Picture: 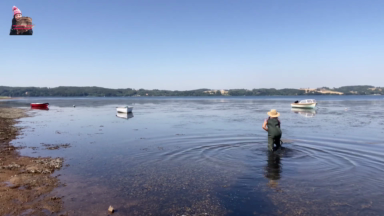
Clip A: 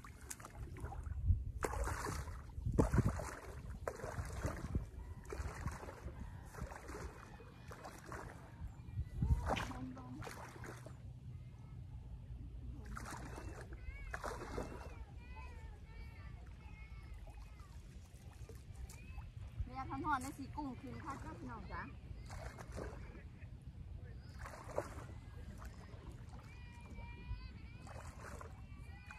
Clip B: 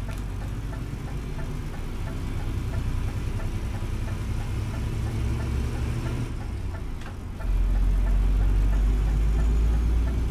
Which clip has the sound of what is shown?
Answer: A